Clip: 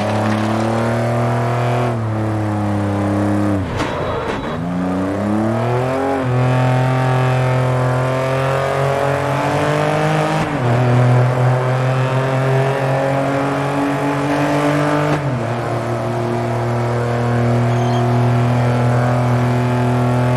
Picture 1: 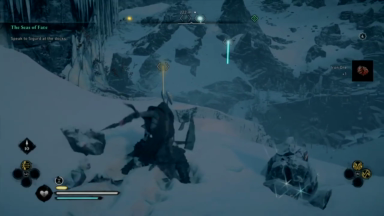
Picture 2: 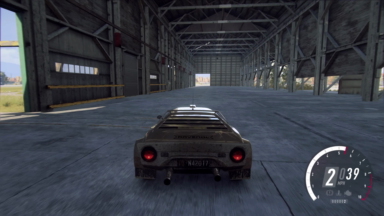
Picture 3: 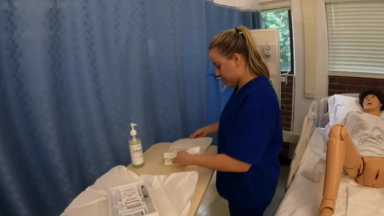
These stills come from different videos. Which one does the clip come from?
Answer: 2